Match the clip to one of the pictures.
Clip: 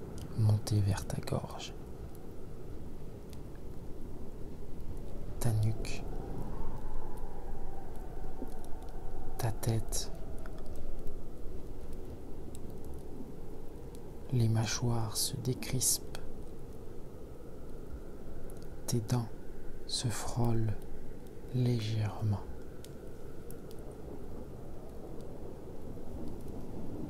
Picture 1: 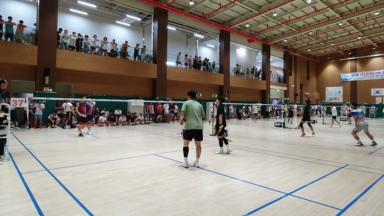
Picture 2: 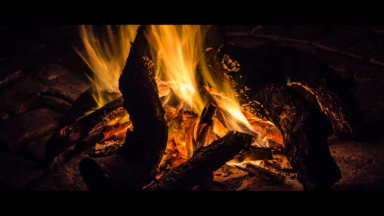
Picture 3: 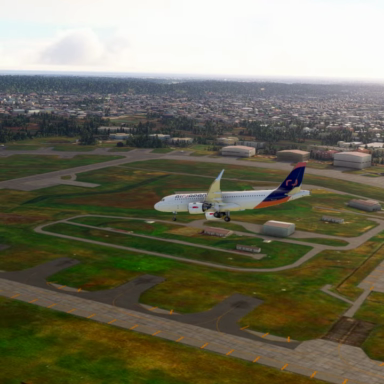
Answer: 2